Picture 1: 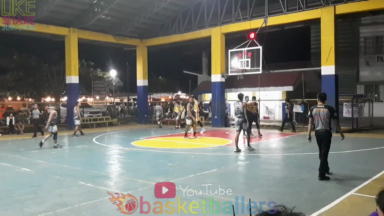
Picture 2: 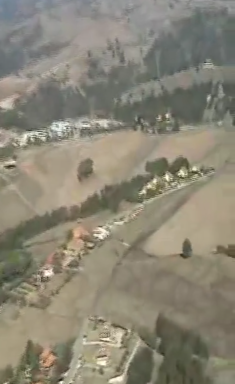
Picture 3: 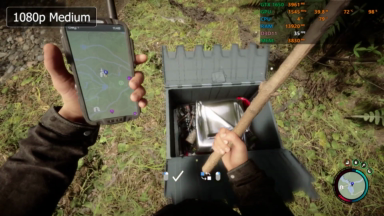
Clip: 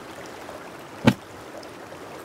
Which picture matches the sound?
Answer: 3